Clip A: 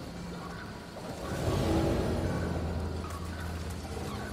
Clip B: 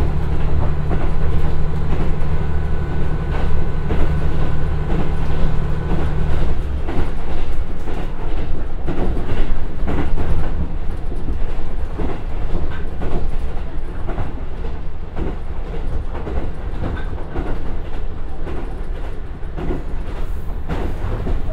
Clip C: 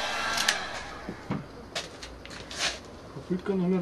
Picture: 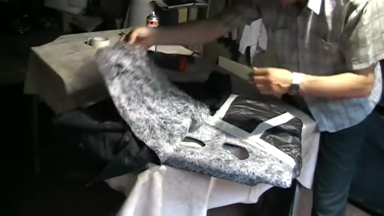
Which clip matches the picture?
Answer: C